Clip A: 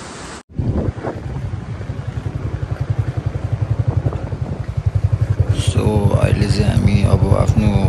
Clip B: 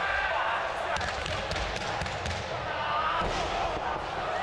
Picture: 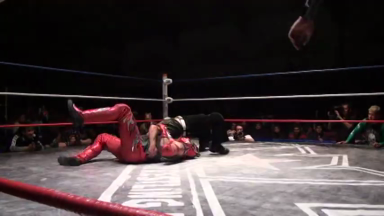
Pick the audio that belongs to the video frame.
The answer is B